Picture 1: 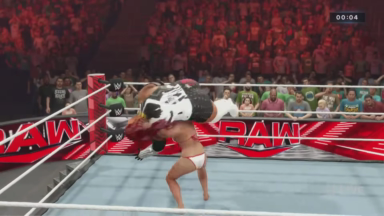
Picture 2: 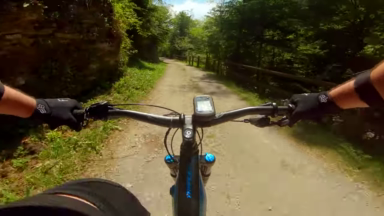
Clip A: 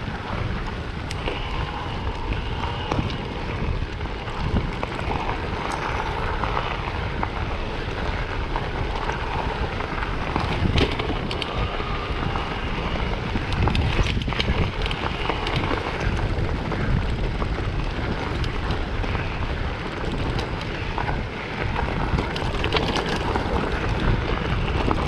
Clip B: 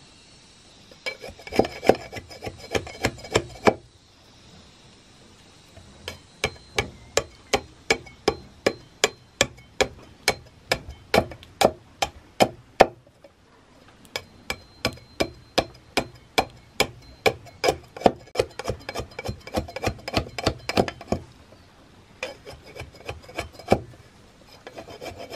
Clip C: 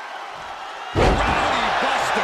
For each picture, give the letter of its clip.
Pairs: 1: C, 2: A